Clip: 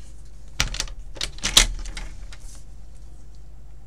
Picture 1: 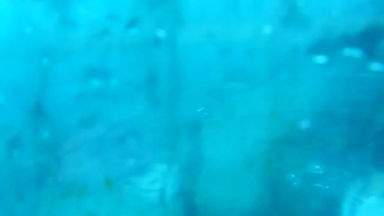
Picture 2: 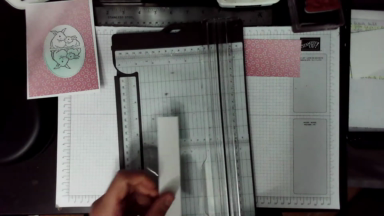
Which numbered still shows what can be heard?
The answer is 2